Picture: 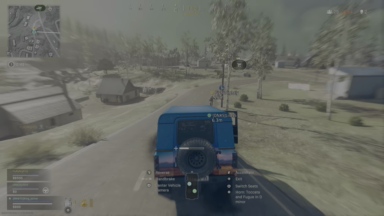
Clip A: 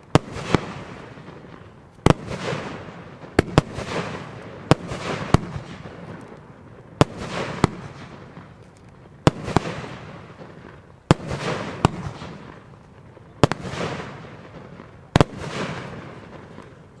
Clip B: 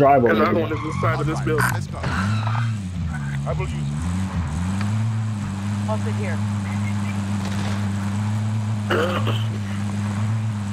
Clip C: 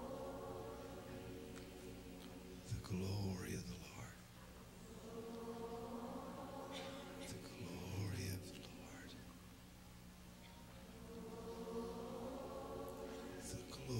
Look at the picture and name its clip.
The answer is B